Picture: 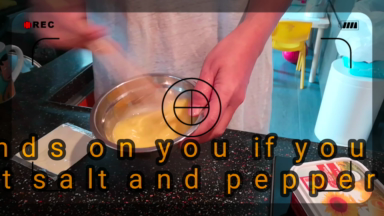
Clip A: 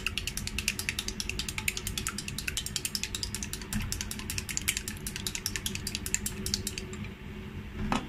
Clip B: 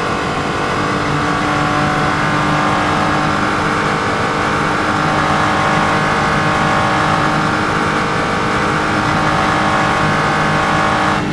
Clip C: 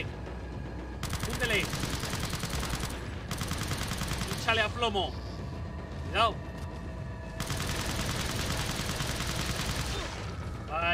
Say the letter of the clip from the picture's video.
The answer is A